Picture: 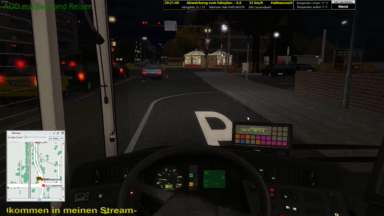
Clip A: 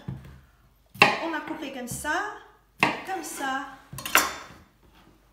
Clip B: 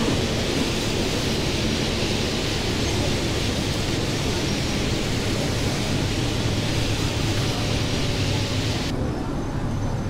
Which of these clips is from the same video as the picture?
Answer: B